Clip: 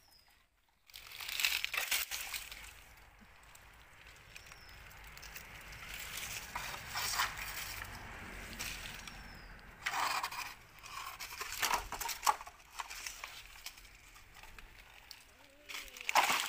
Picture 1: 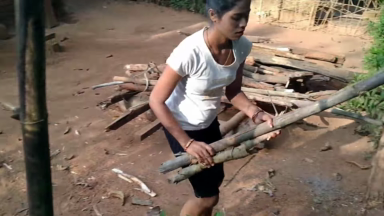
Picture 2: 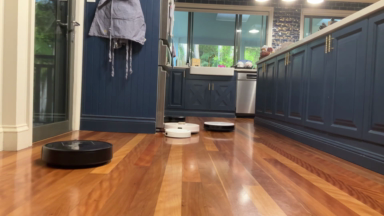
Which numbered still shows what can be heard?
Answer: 1